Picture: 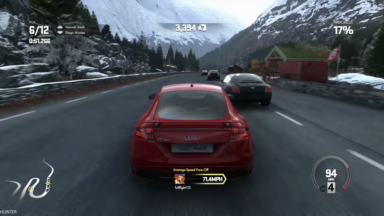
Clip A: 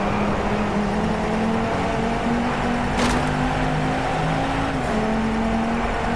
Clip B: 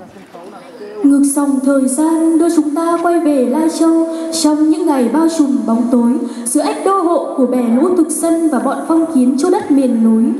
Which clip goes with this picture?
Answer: A